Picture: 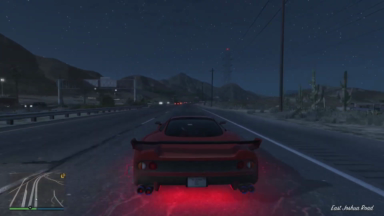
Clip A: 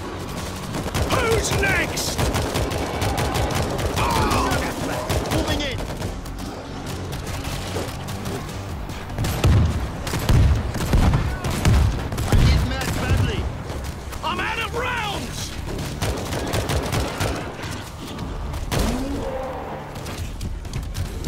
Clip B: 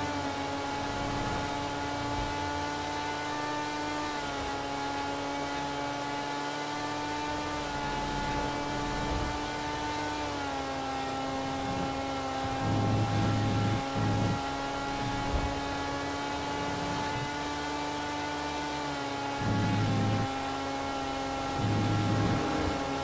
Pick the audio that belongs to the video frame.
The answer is B